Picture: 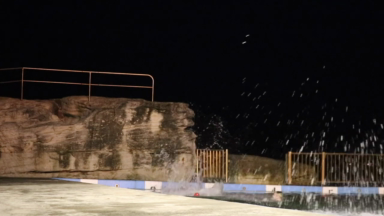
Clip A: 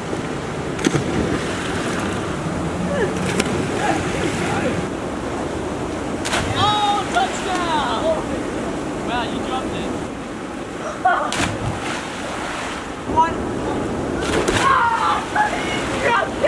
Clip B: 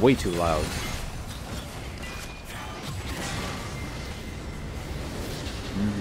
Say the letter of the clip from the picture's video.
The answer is A